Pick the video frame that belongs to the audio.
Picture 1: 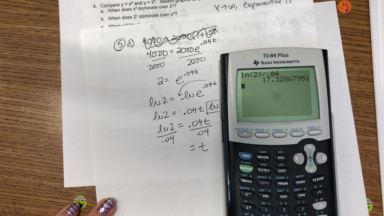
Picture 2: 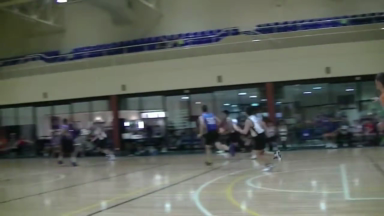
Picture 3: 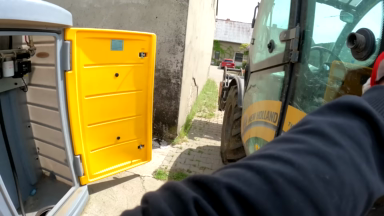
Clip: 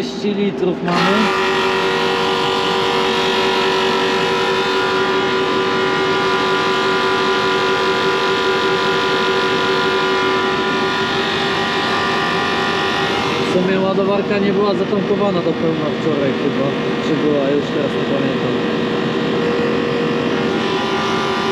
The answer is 3